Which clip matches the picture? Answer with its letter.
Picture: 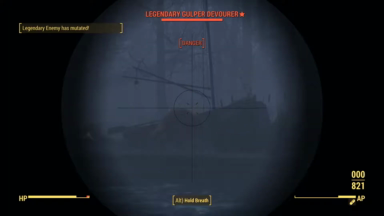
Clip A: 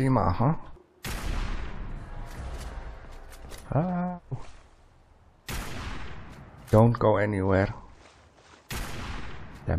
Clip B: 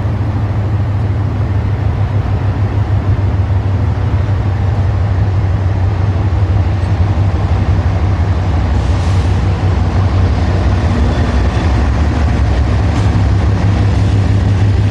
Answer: A